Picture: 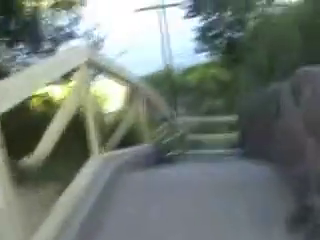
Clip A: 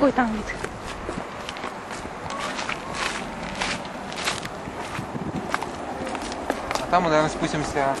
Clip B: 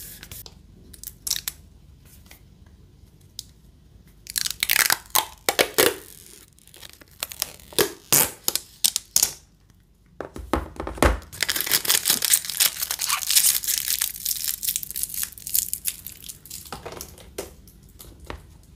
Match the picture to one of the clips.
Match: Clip A